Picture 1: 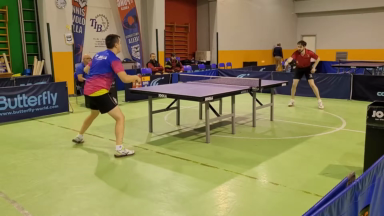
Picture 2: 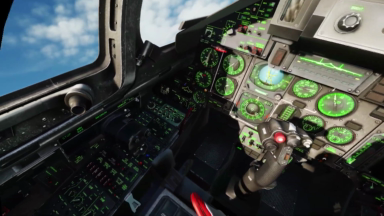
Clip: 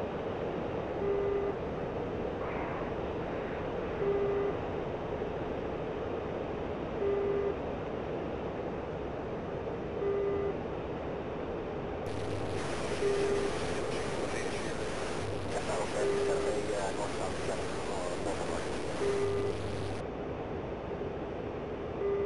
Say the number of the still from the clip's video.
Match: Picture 2